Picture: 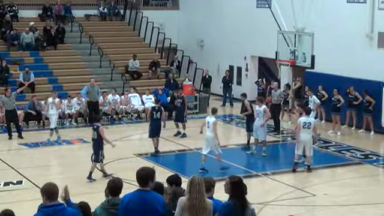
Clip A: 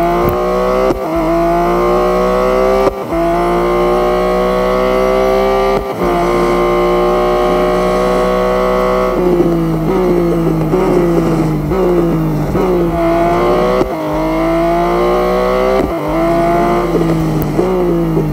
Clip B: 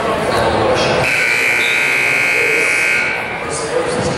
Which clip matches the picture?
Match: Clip B